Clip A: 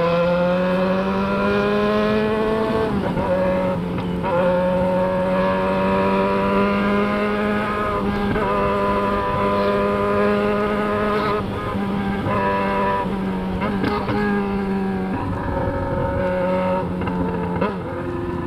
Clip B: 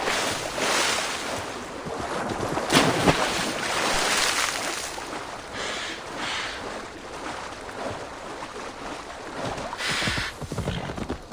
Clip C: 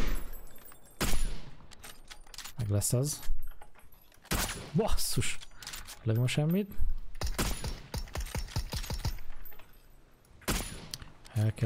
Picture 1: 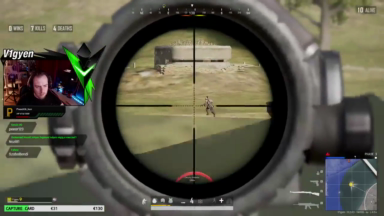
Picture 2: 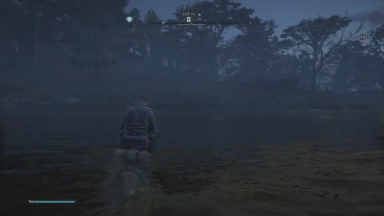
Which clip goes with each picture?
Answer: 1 C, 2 B